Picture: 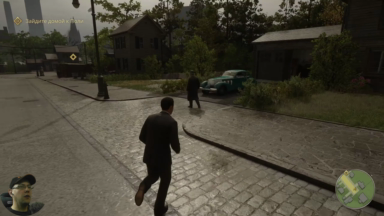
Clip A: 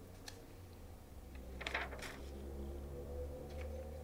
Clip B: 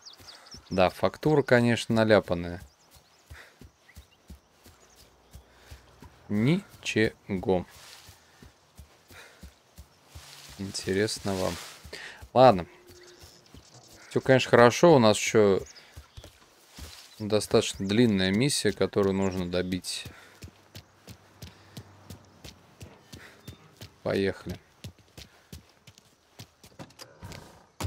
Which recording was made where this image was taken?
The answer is B